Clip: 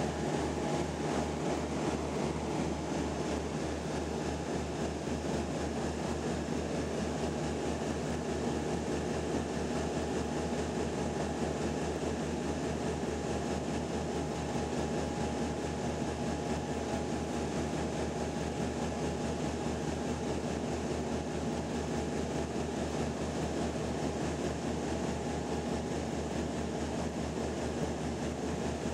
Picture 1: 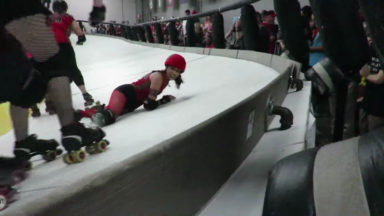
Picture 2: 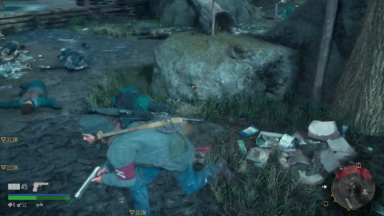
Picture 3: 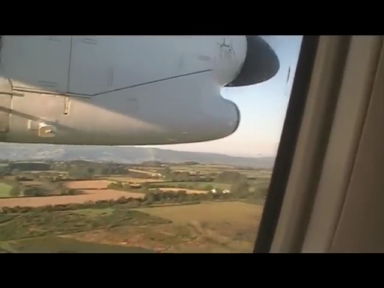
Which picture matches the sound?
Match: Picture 3